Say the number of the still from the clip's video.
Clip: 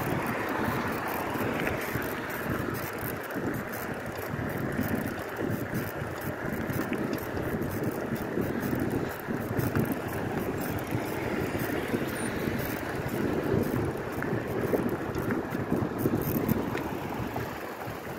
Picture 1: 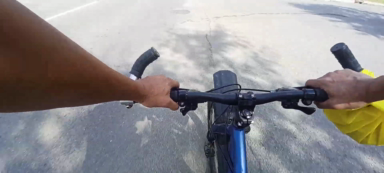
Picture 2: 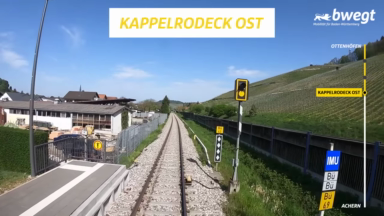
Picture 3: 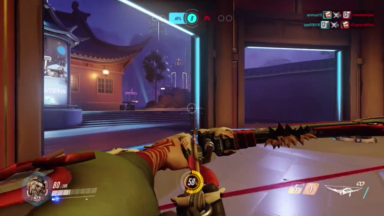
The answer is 1